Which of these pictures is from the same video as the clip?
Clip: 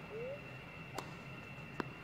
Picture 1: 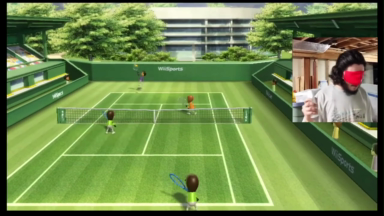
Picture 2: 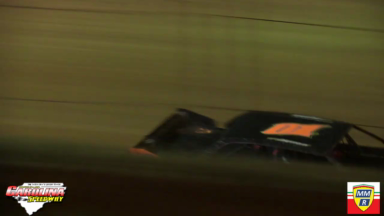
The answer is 1